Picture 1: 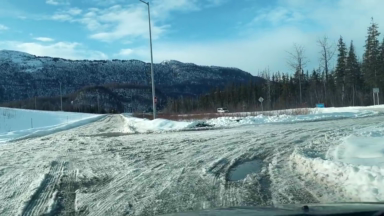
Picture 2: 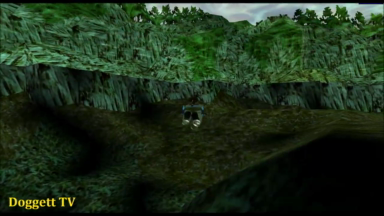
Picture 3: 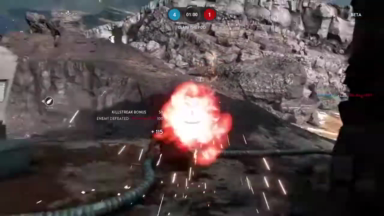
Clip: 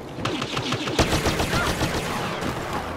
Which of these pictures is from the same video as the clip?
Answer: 3